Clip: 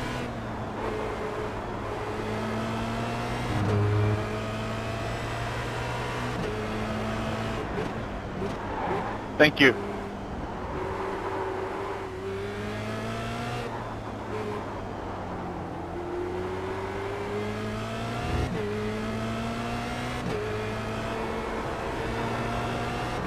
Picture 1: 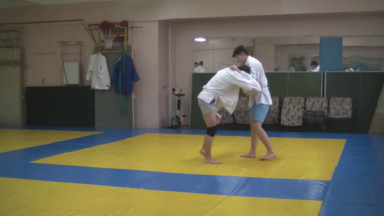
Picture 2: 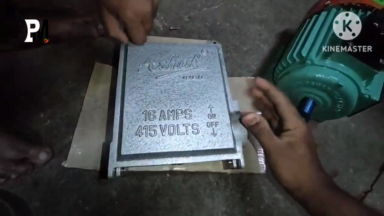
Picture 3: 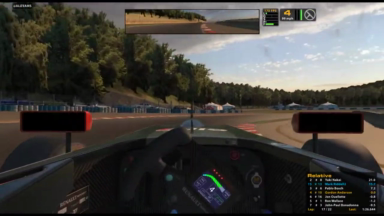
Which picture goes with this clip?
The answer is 3